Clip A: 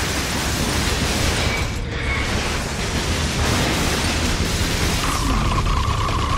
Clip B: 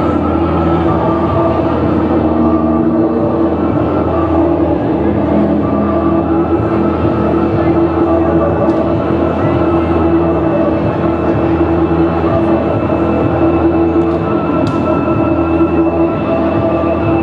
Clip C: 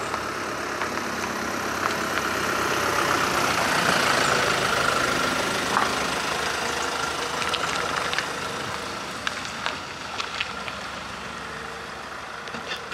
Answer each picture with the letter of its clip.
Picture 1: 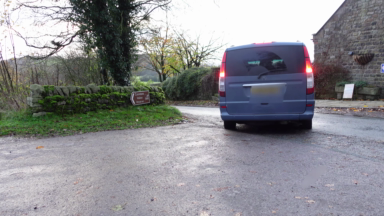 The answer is C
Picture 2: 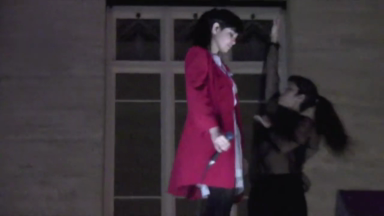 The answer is B